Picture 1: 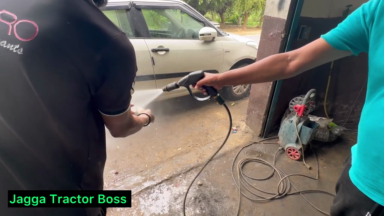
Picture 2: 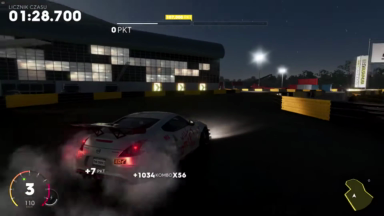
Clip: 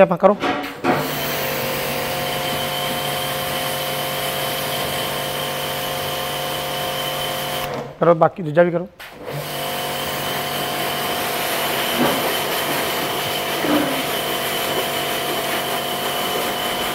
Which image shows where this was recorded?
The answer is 1